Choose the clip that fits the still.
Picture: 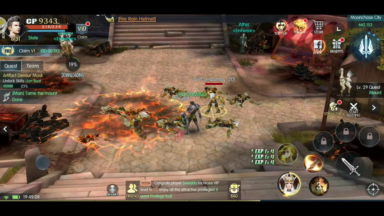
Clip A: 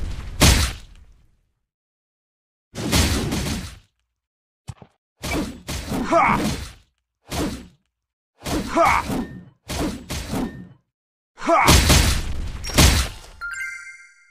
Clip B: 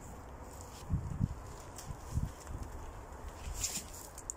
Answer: A